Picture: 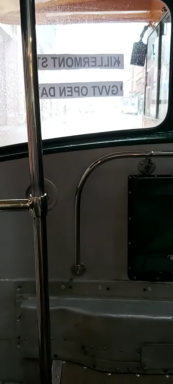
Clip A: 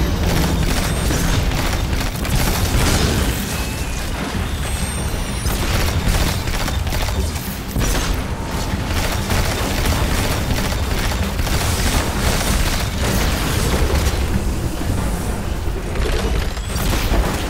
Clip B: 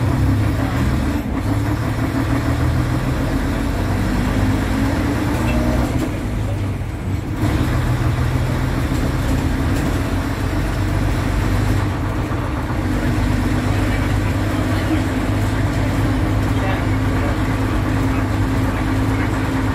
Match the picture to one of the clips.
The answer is B